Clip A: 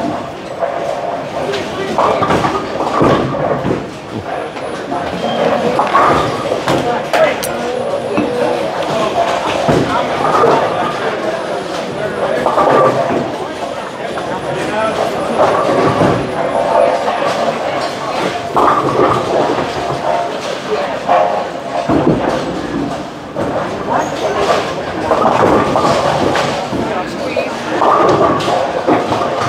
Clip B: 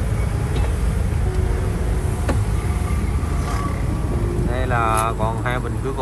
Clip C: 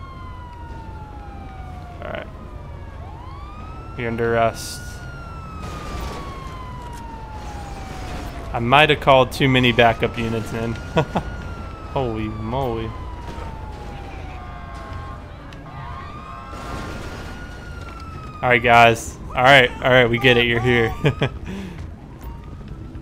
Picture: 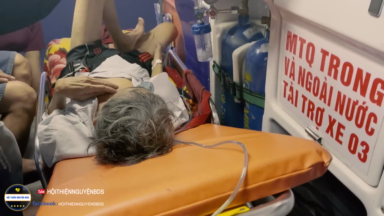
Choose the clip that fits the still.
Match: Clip B